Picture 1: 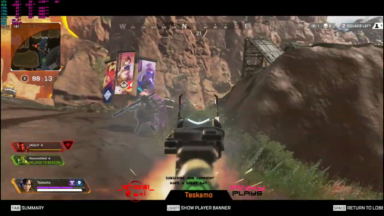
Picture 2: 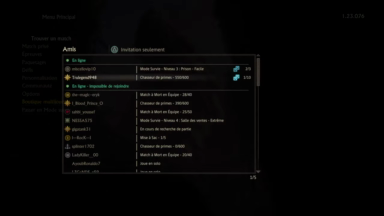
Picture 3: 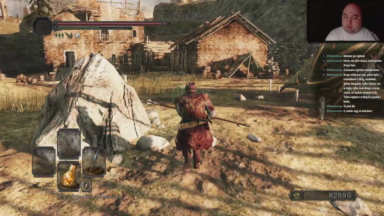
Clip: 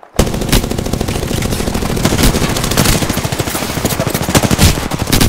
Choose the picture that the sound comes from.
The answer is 1